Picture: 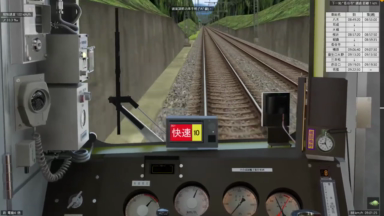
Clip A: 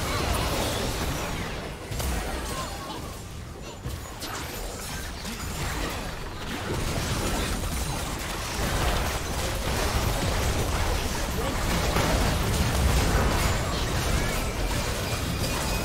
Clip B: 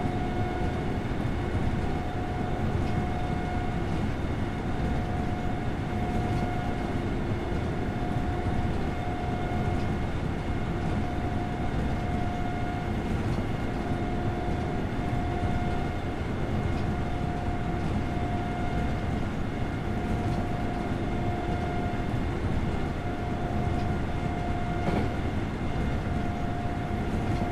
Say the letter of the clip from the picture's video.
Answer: B